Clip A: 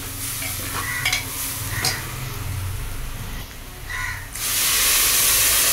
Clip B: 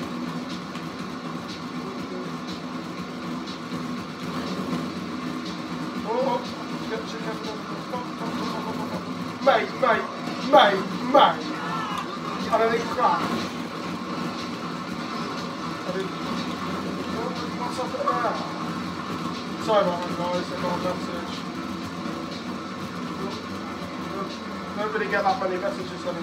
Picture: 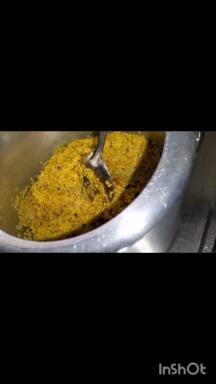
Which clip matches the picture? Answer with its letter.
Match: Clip A